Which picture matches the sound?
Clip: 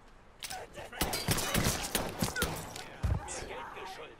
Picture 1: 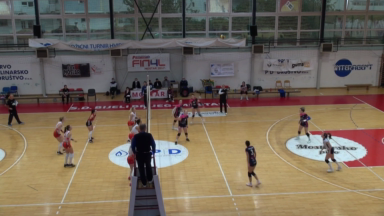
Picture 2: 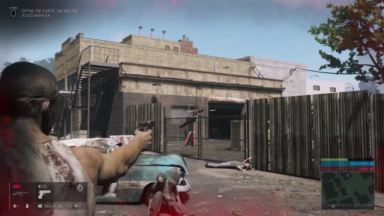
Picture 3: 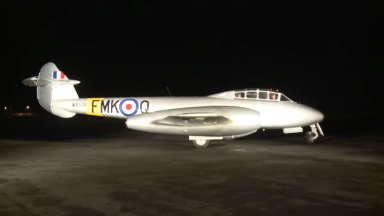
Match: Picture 2